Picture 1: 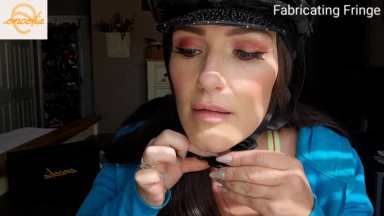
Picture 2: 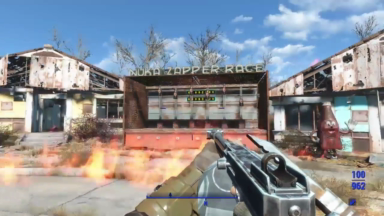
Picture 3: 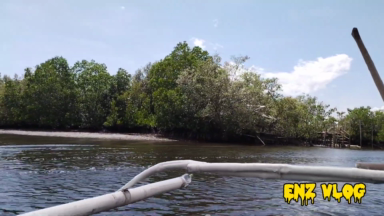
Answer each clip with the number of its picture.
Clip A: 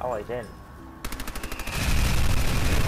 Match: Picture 2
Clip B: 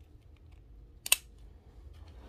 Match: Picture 1